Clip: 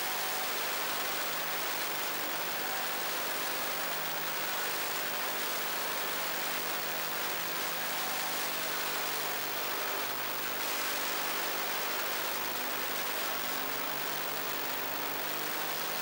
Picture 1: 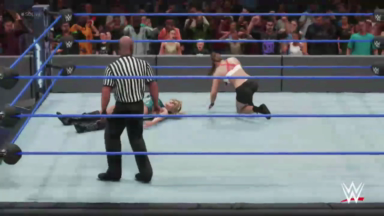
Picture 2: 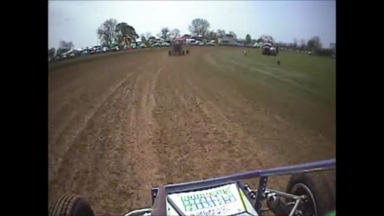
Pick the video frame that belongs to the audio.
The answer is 2